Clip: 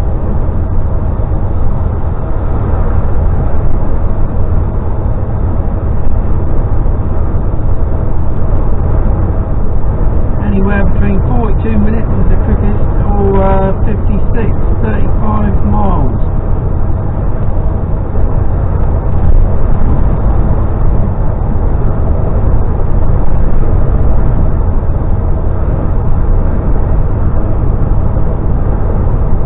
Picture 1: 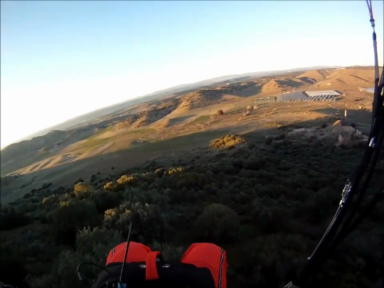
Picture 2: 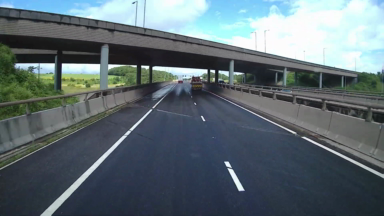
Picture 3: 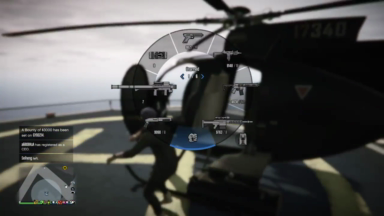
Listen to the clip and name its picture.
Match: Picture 2